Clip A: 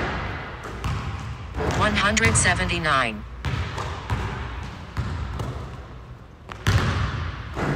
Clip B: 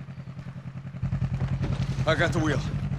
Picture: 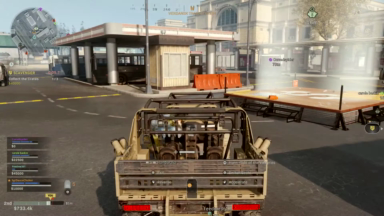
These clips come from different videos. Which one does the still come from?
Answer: B